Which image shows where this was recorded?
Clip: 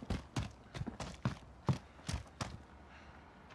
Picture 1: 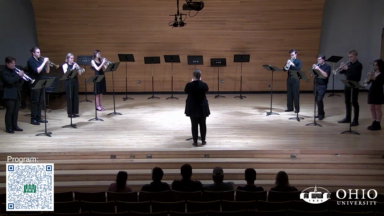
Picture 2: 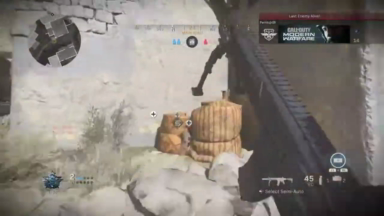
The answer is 2